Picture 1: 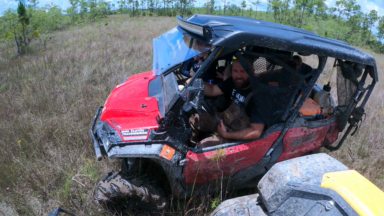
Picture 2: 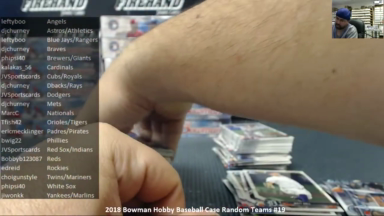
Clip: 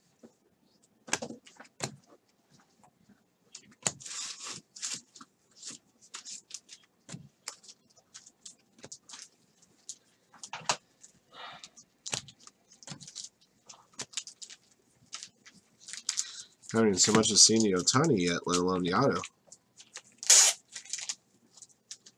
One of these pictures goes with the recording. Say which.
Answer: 2